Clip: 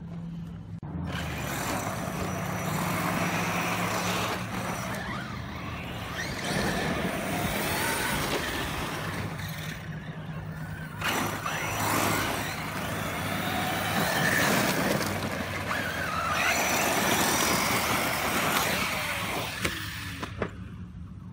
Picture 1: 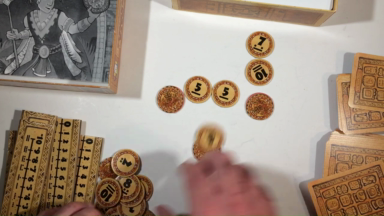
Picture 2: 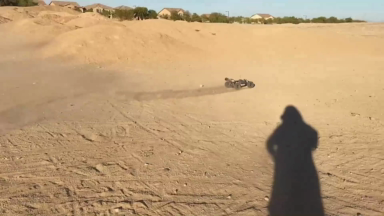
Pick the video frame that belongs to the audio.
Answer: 2